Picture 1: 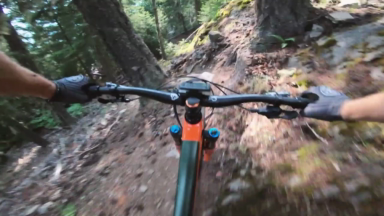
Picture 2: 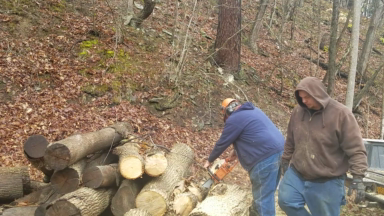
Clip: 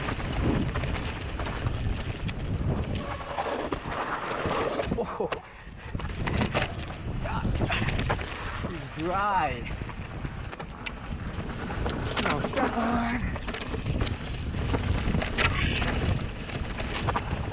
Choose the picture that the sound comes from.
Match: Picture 1